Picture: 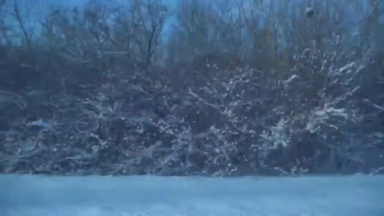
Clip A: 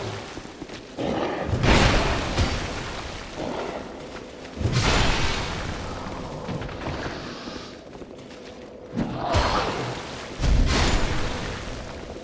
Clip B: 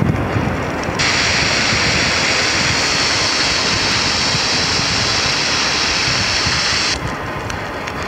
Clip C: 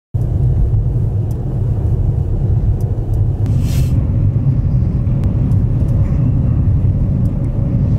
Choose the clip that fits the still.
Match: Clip C